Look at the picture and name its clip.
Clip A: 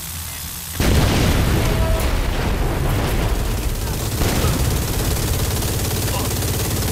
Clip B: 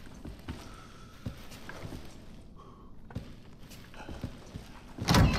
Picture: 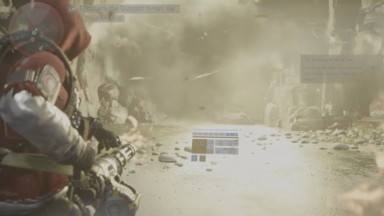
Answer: A